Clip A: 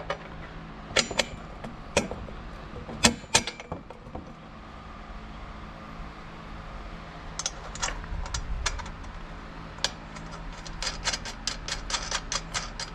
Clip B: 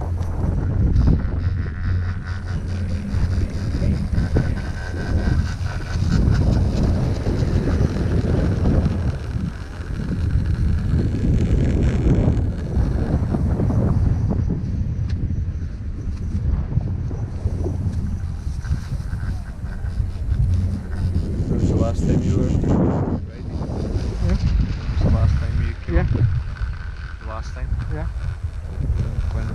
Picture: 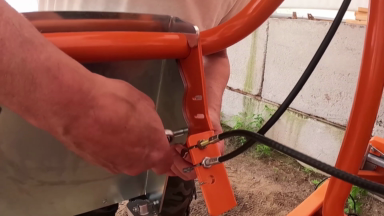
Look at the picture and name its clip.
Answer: A